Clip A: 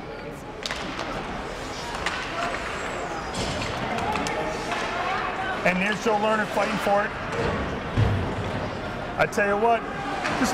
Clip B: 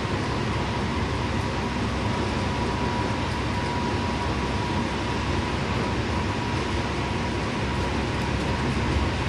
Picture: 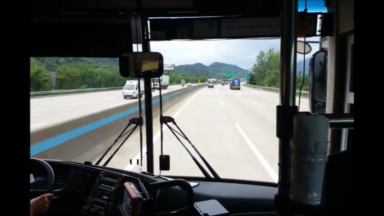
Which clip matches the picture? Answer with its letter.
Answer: B